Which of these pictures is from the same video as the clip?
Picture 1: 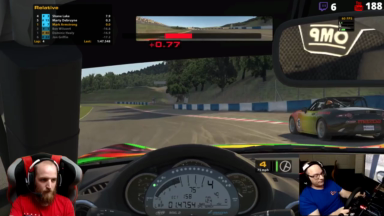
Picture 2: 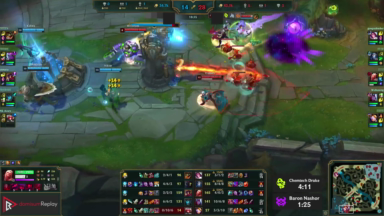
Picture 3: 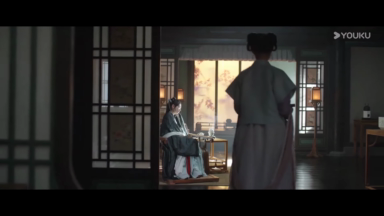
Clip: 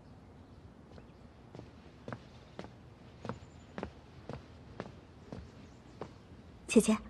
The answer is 3